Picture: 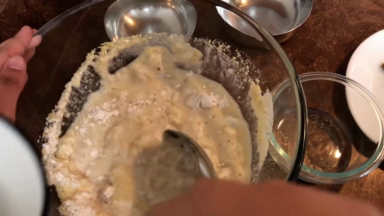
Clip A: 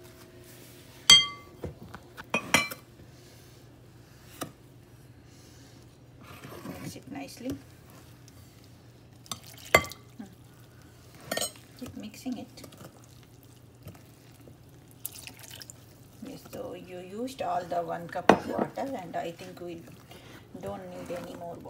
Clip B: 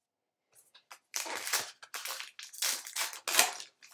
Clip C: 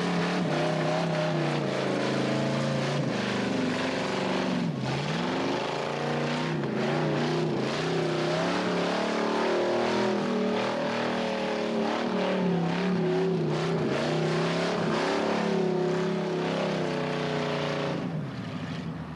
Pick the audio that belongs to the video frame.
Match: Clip A